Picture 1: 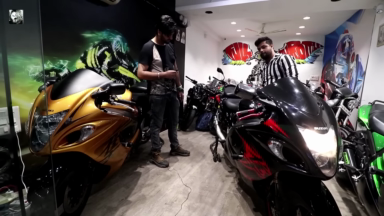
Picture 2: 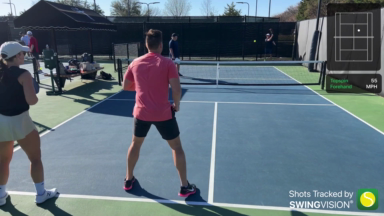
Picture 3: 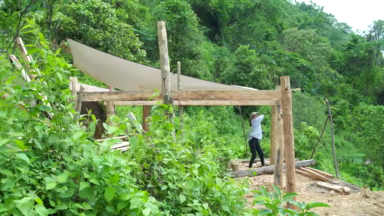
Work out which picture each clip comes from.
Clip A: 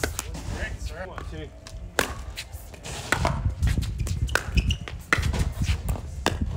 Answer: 2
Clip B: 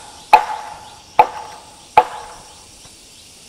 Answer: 3